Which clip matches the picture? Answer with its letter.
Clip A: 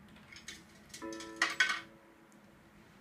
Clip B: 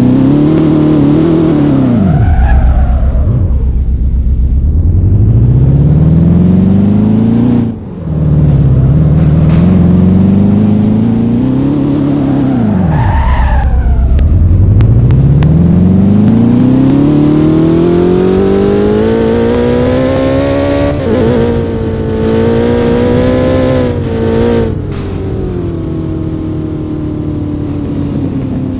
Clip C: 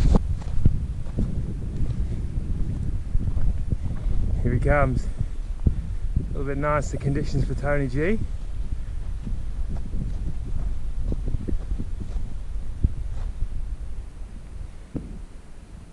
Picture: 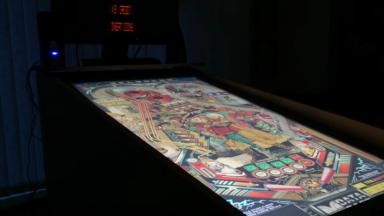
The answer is A